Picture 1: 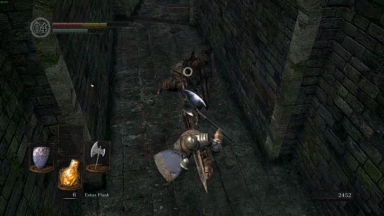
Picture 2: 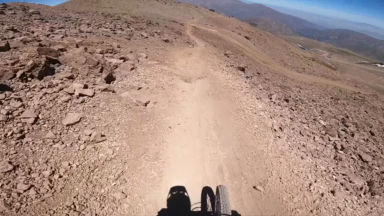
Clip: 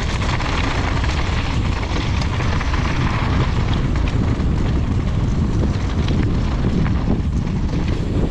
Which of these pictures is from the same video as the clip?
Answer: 2